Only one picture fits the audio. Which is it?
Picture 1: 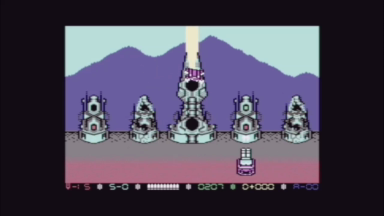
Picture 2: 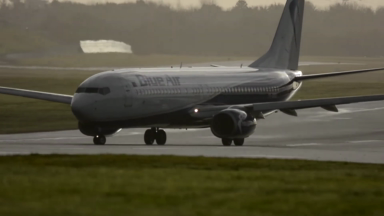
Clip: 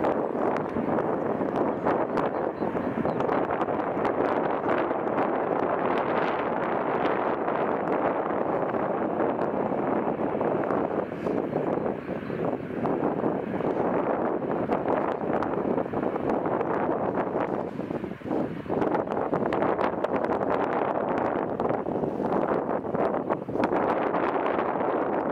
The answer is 2